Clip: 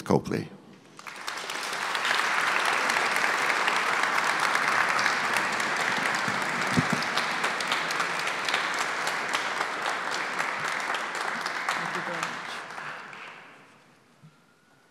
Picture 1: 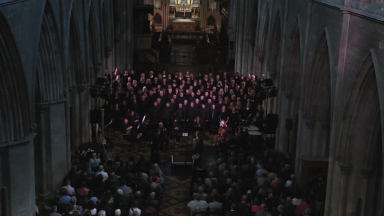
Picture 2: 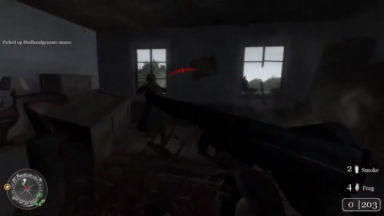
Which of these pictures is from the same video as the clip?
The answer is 1